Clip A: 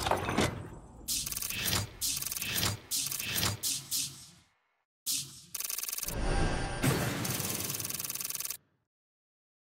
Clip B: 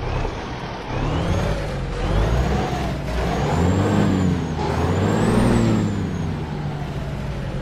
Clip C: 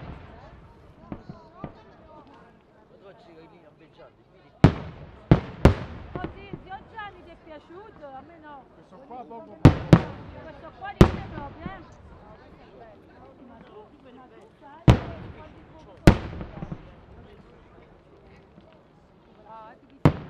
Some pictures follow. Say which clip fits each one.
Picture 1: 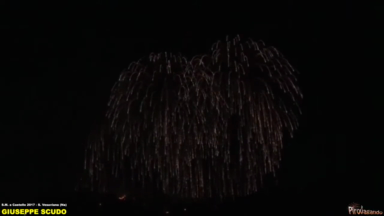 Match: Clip C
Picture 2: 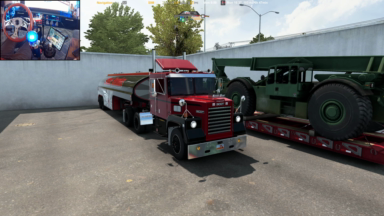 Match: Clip B